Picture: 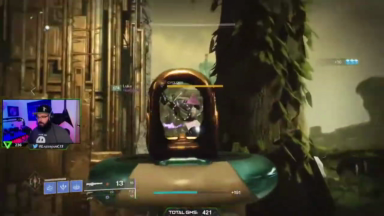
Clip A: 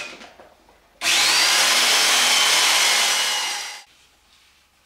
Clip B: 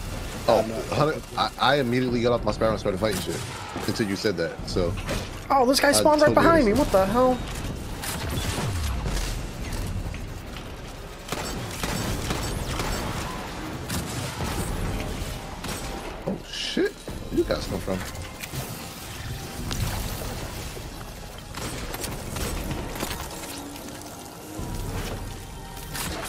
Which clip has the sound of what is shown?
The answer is B